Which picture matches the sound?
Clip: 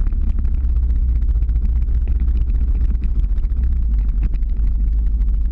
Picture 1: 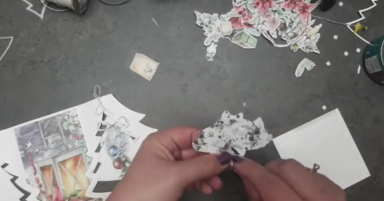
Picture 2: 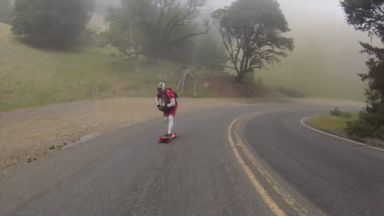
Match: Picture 2